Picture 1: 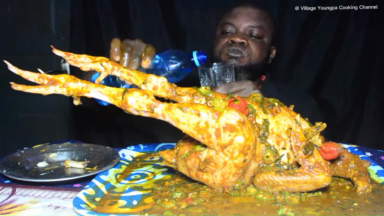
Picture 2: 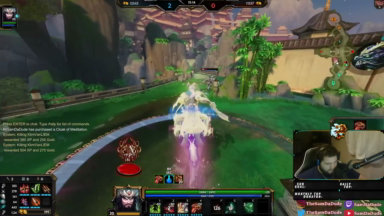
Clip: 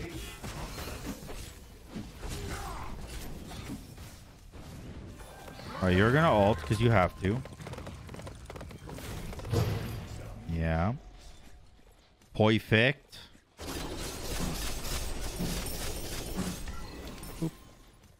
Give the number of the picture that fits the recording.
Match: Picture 2